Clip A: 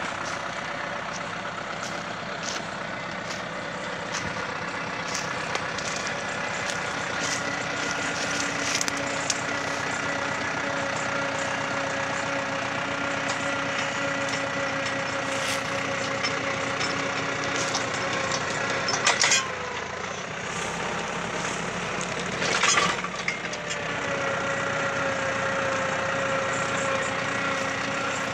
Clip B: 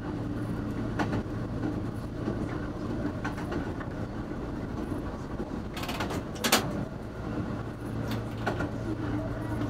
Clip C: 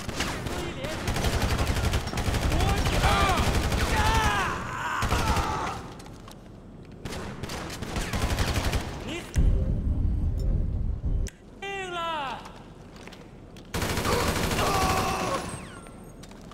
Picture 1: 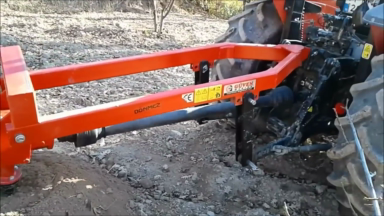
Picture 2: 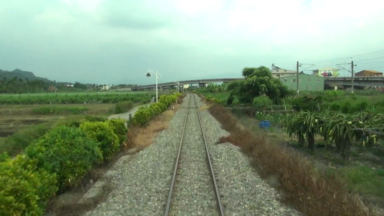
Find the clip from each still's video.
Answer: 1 A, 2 B